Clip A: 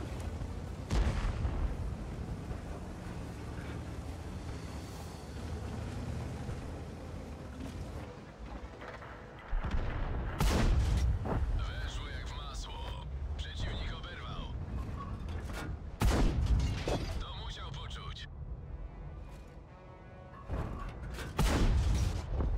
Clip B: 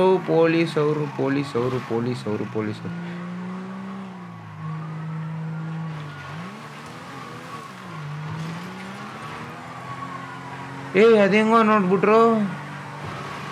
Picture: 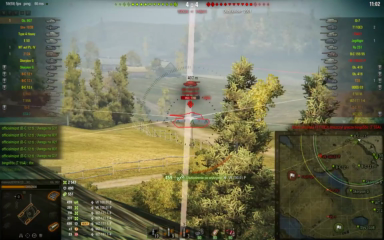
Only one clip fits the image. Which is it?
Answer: A